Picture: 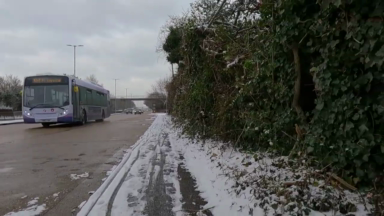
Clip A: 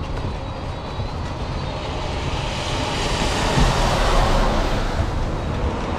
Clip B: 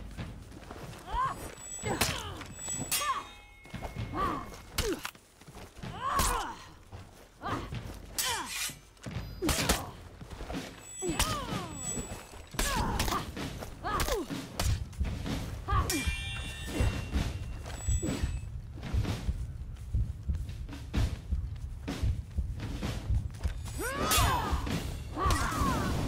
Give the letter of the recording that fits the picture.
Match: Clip A